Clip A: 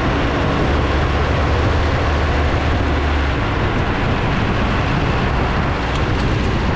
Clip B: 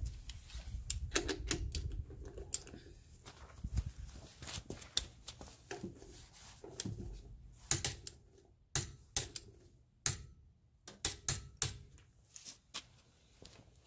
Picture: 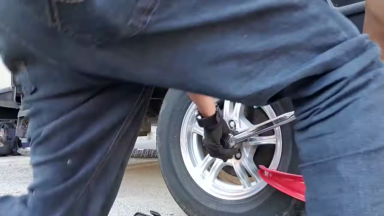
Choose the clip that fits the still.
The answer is B